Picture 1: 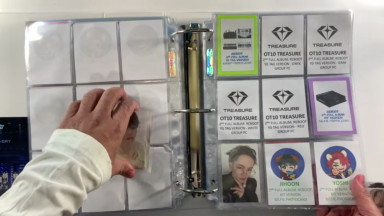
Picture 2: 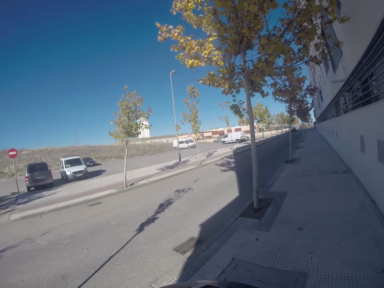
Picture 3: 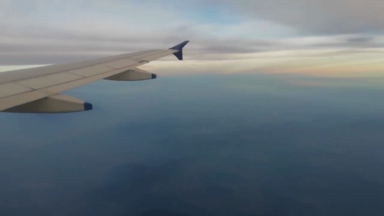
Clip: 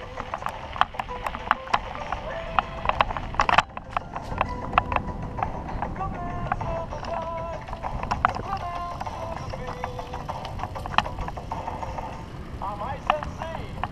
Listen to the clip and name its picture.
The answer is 2